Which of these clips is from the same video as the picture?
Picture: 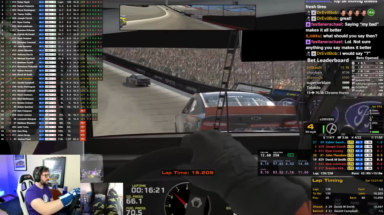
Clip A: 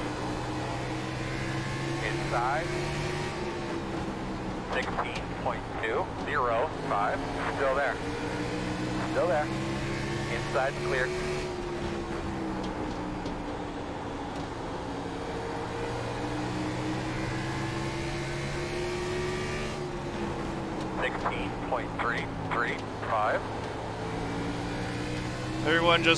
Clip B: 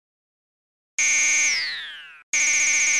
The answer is A